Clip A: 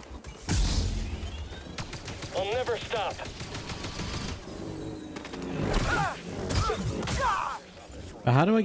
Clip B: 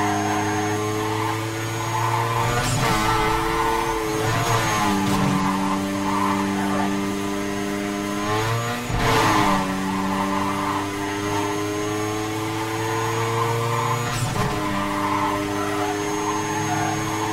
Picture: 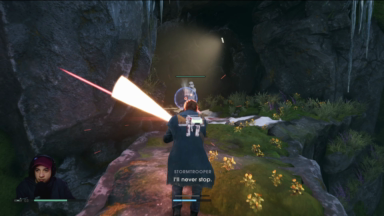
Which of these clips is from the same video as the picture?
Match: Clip A